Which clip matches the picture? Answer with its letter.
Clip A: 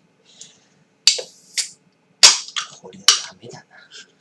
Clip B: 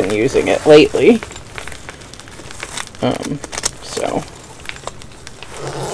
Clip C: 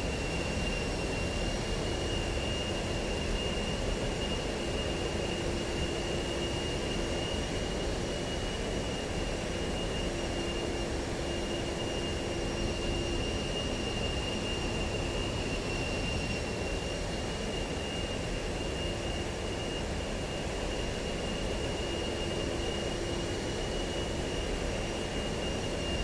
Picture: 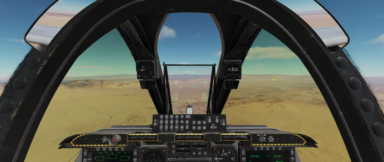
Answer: C